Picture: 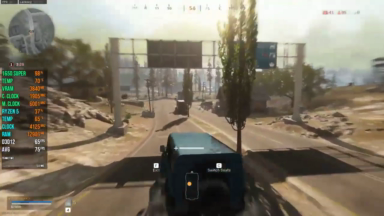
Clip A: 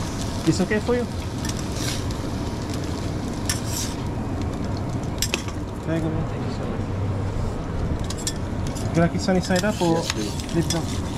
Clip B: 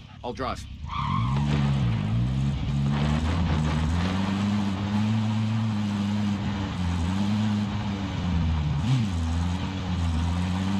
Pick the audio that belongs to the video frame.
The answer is B